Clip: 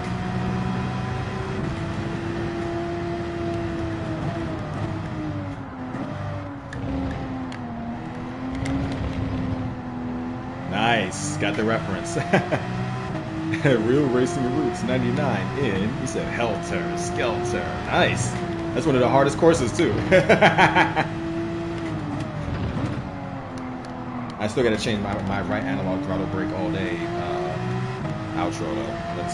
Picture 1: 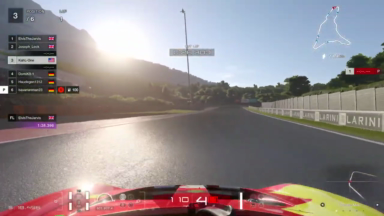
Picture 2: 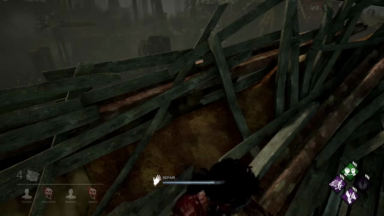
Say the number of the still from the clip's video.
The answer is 1